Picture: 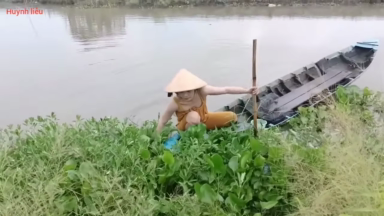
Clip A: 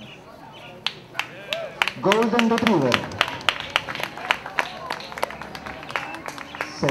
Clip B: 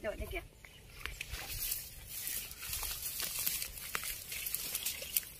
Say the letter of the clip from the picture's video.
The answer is B